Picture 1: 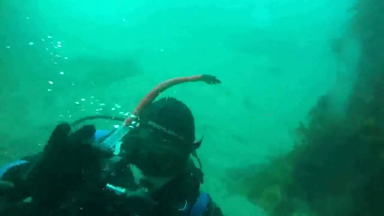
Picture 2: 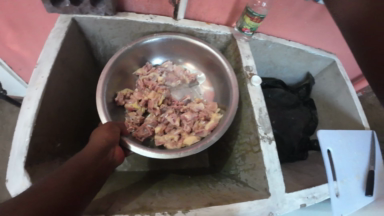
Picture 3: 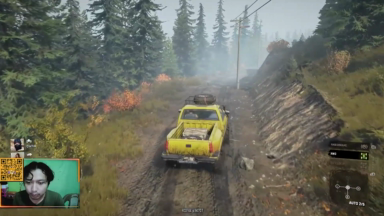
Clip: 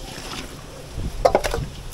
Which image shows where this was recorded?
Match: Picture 2